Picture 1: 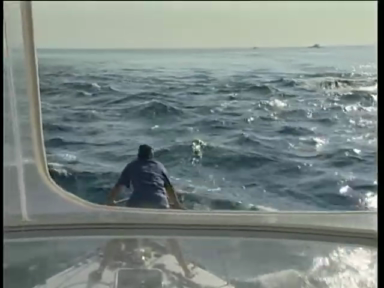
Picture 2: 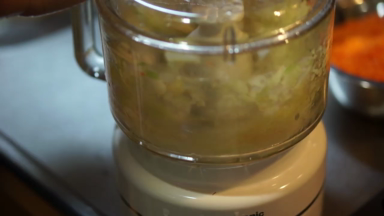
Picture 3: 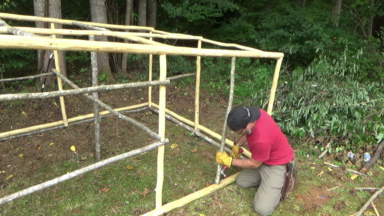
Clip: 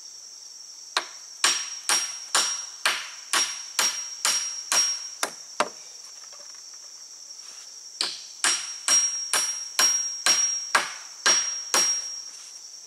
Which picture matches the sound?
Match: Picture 3